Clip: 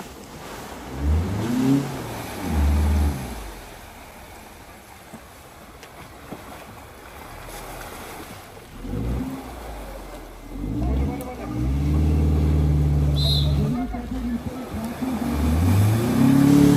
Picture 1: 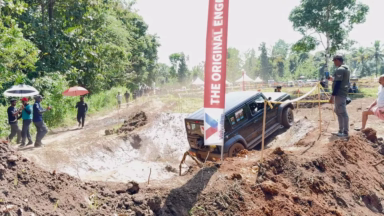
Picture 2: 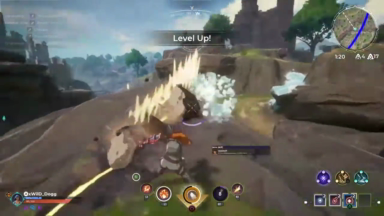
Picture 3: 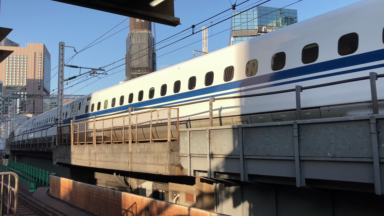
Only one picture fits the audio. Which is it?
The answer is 1